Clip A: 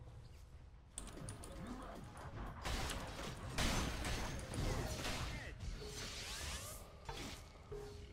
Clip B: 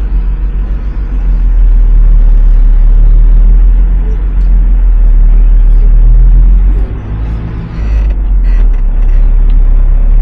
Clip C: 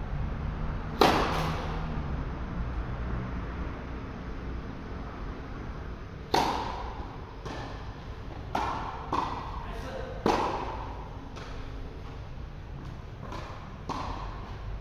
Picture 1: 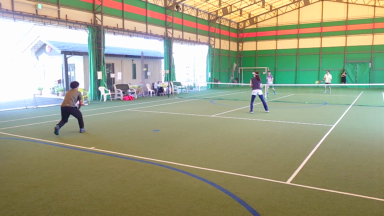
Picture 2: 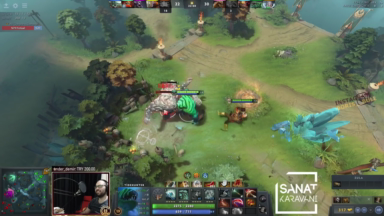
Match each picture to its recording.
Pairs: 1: C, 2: A